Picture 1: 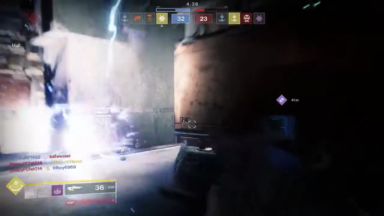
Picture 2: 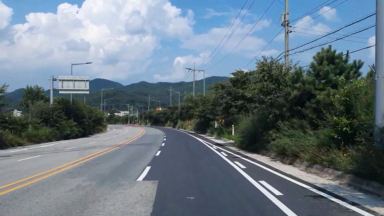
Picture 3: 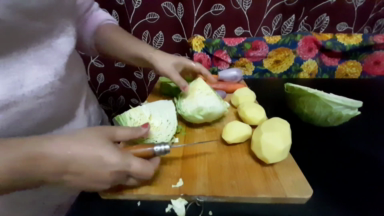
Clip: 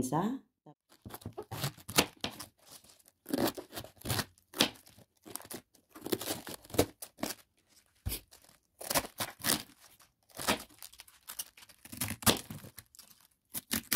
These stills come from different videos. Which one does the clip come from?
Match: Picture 3